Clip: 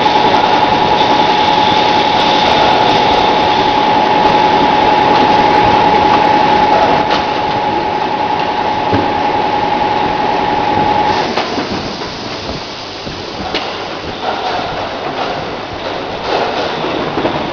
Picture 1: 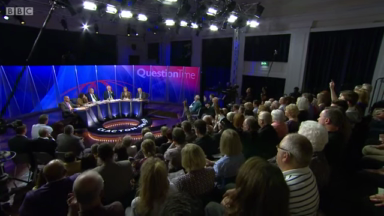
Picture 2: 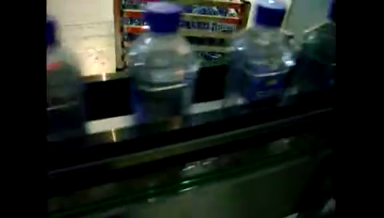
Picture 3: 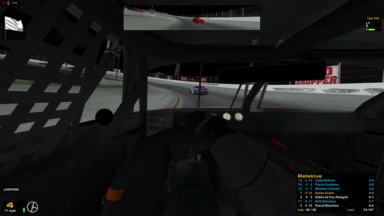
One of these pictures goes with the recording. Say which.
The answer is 2